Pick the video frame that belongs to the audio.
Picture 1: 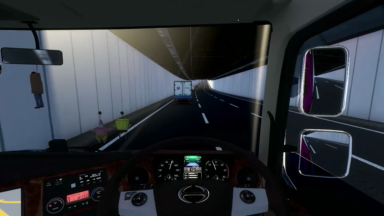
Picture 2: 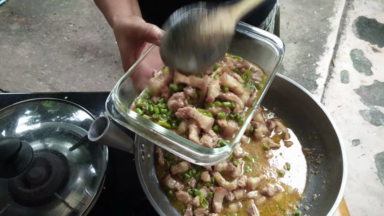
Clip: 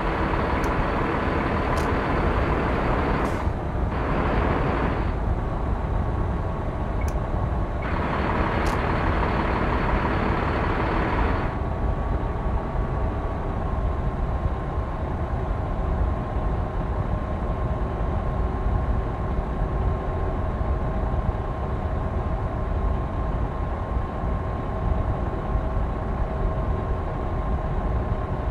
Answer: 1